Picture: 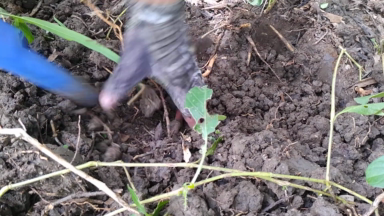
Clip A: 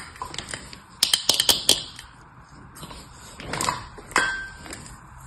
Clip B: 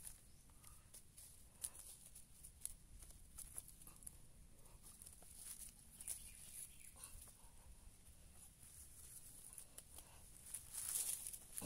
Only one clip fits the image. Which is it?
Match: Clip B